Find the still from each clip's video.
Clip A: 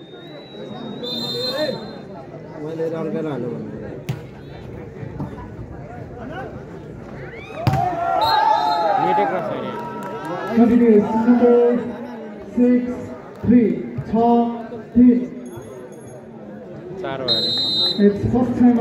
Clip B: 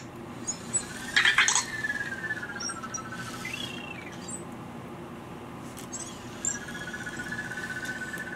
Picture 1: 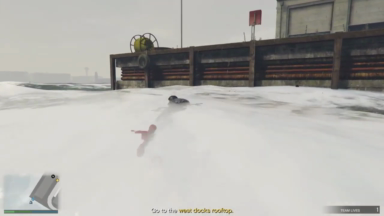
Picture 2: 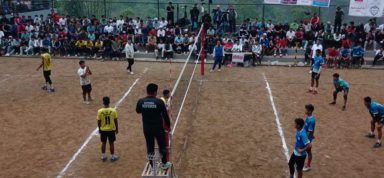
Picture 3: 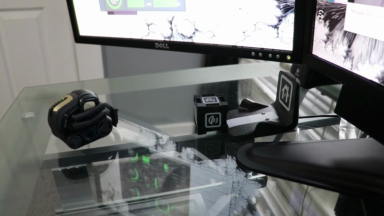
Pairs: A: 2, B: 3